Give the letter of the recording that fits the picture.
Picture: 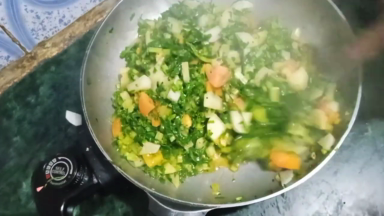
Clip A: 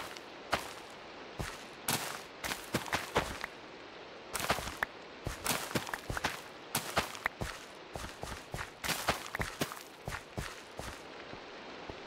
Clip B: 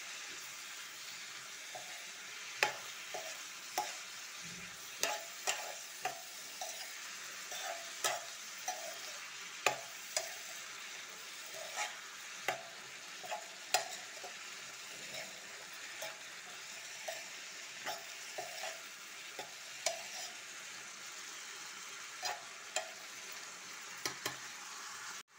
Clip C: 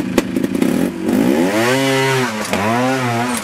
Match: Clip B